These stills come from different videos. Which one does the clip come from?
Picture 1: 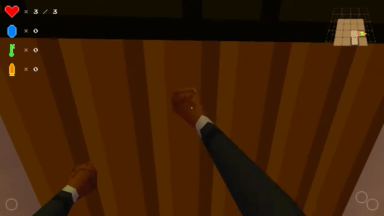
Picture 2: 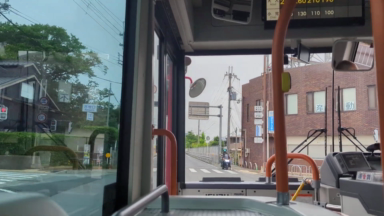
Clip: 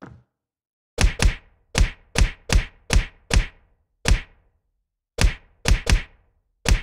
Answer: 1